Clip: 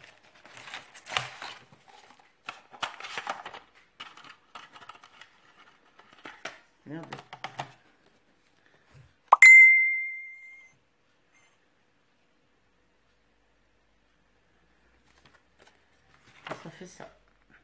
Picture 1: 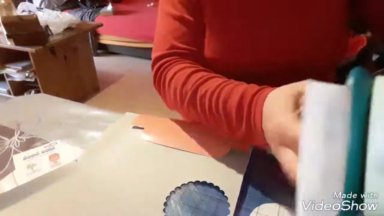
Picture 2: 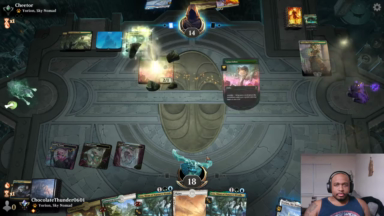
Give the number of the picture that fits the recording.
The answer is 1